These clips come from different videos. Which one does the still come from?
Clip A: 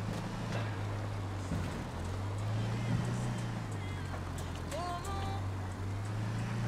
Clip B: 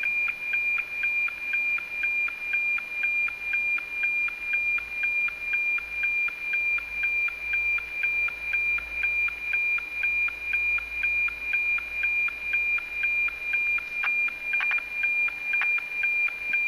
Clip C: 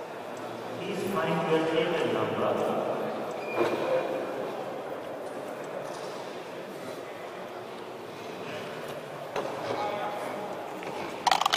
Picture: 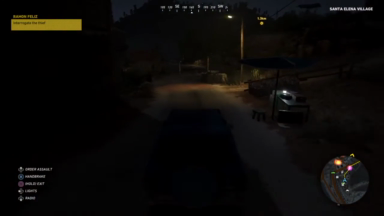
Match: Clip A